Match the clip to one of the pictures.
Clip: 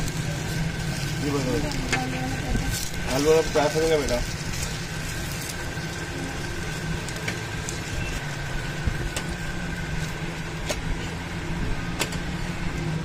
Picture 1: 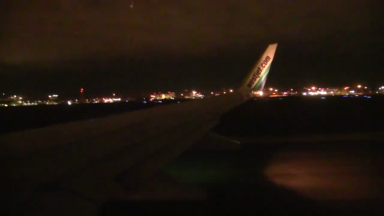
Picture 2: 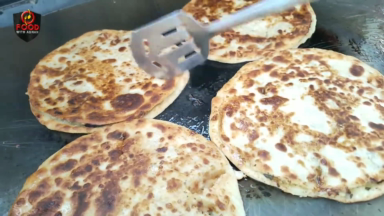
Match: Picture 2